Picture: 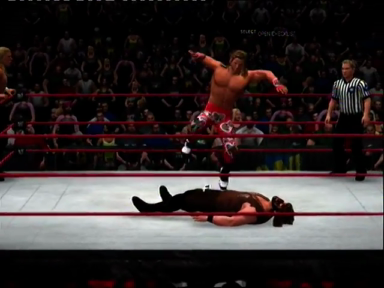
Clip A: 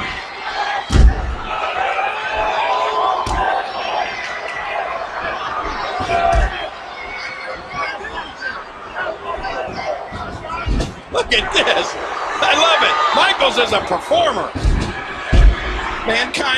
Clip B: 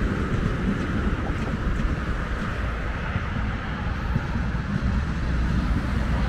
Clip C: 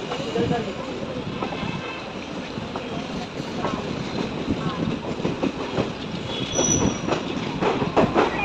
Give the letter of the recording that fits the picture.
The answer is A